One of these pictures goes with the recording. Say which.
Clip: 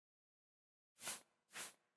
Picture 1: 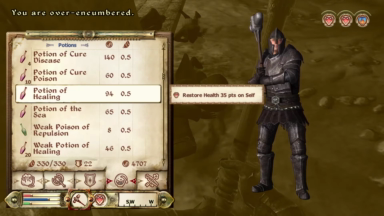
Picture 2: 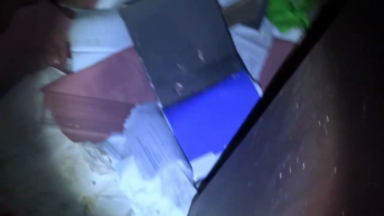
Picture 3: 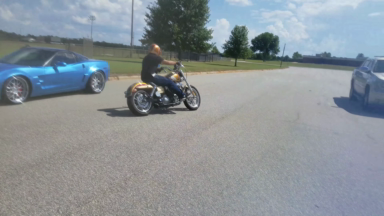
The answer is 1